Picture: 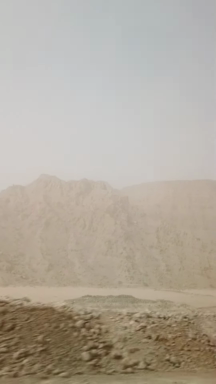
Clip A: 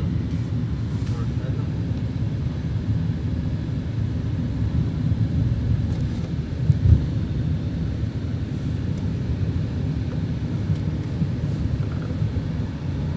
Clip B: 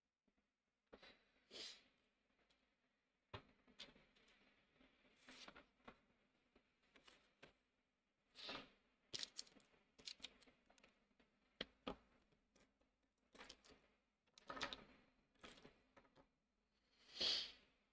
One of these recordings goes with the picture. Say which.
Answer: A